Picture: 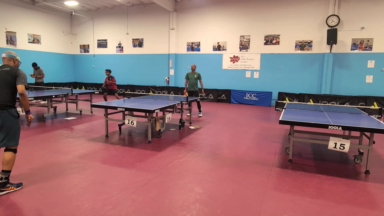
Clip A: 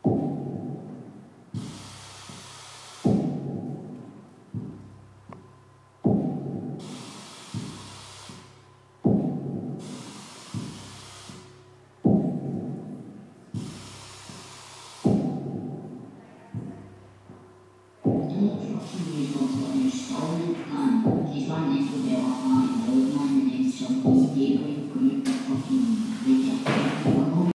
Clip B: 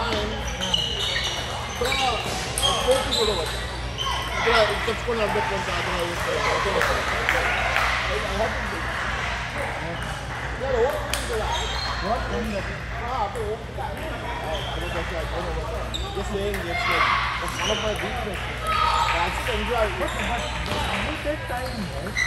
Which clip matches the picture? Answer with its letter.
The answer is B